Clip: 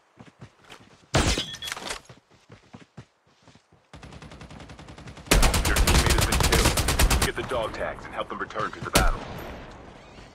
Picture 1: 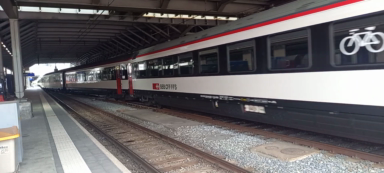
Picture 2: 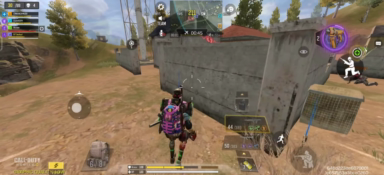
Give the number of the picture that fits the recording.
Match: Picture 2